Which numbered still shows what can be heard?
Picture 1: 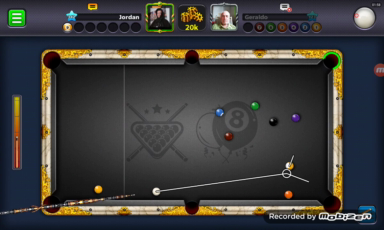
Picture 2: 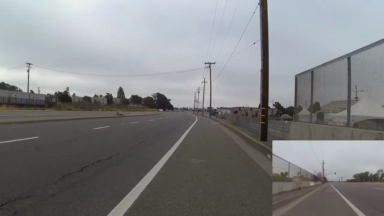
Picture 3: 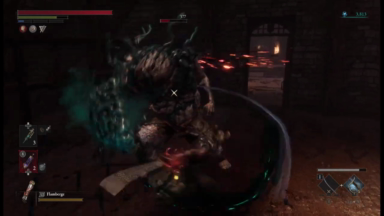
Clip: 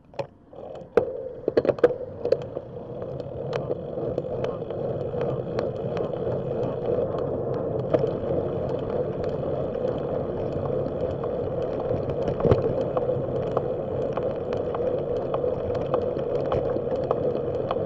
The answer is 2